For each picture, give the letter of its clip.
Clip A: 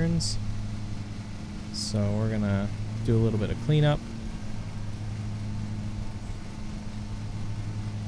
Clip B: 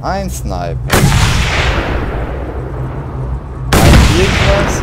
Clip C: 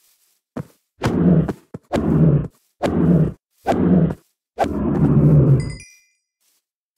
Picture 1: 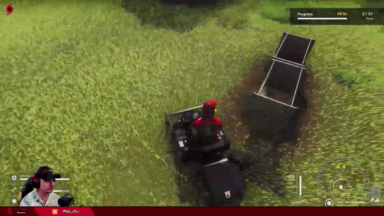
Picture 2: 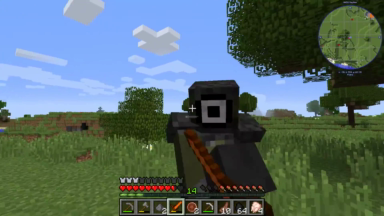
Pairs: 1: A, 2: C